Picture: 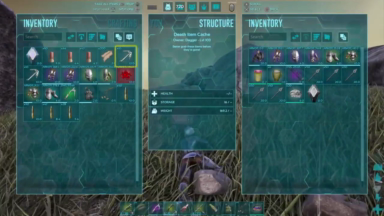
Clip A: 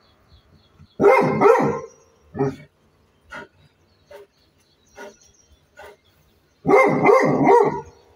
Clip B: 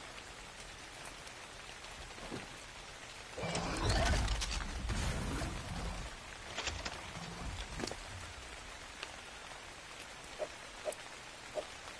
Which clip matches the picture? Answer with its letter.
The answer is B